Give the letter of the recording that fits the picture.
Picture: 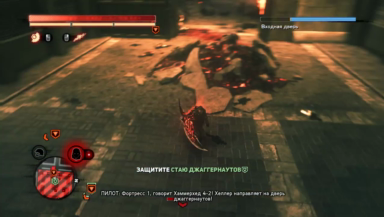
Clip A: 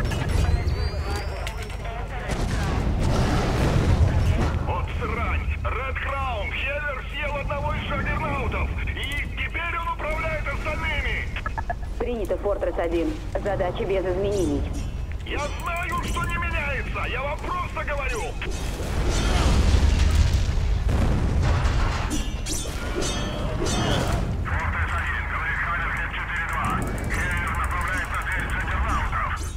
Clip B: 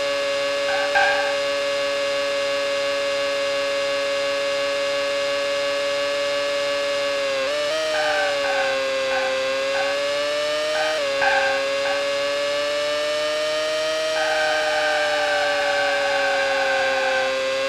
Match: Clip A